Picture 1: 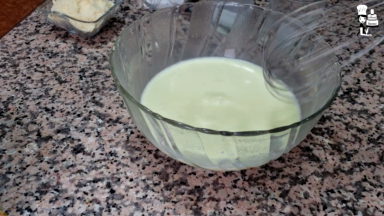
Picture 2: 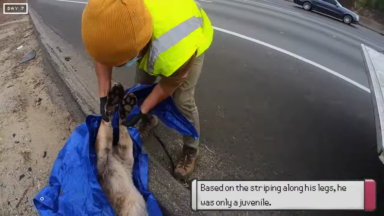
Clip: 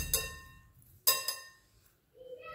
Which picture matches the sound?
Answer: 1